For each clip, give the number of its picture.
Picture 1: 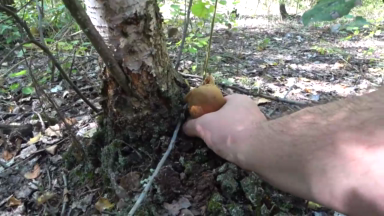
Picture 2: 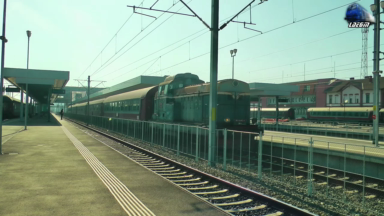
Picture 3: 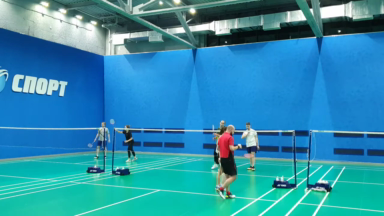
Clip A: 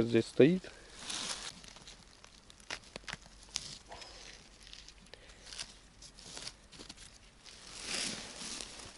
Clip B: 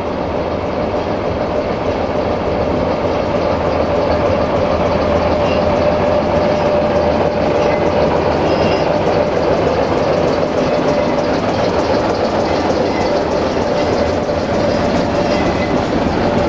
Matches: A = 1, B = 2